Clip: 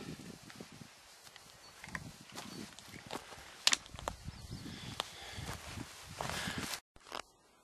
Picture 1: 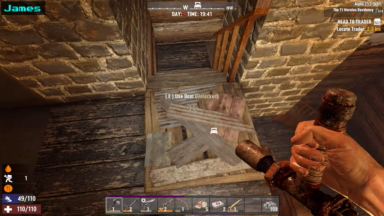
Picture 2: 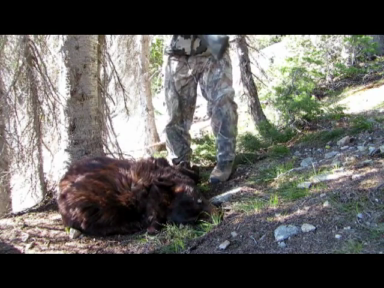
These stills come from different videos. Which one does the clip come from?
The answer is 2